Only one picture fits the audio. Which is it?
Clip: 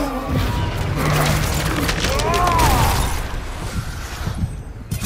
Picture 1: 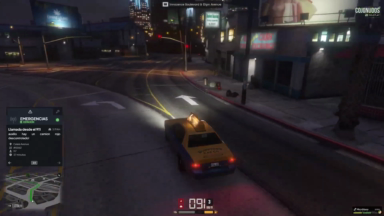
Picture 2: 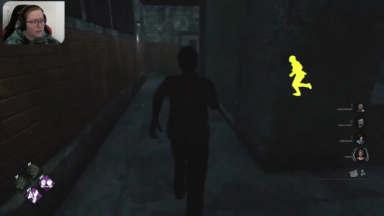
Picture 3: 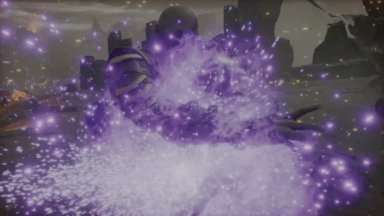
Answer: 3